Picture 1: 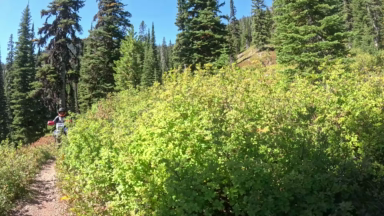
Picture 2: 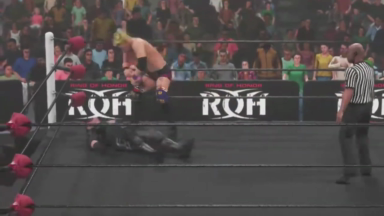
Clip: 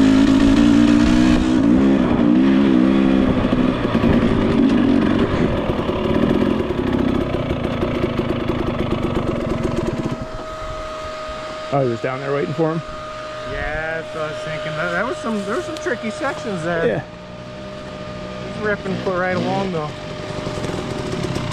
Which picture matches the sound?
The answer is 1